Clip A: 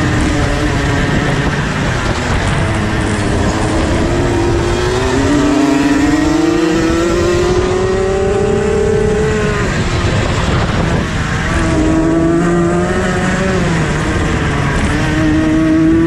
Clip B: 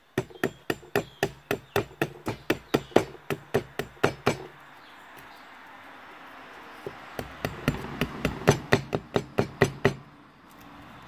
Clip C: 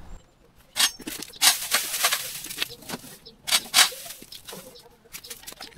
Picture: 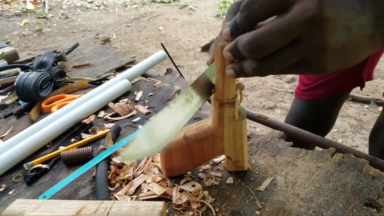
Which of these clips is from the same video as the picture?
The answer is B